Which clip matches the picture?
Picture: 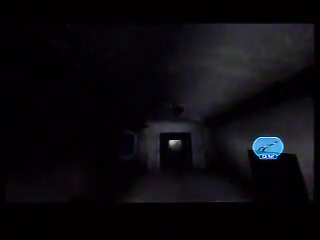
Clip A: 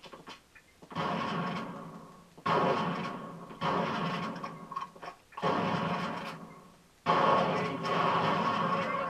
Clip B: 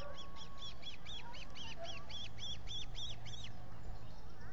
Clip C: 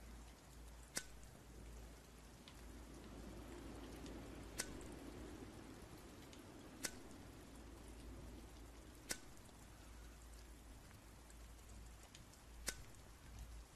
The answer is A